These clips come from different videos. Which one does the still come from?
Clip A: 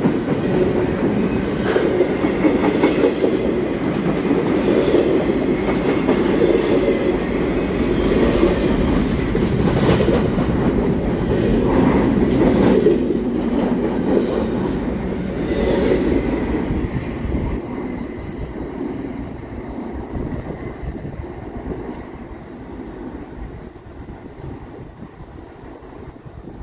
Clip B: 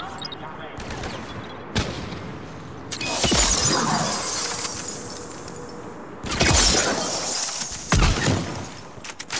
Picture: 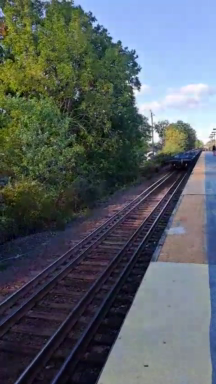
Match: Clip A